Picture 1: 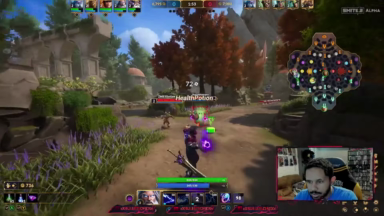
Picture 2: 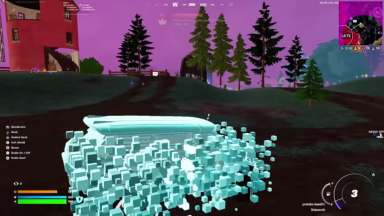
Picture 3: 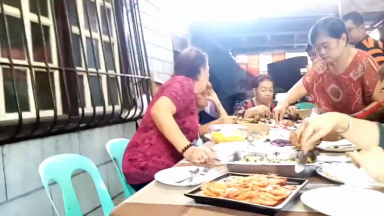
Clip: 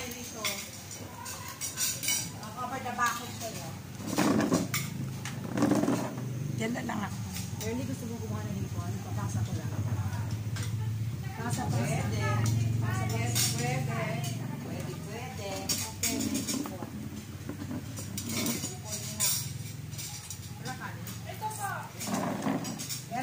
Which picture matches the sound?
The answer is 3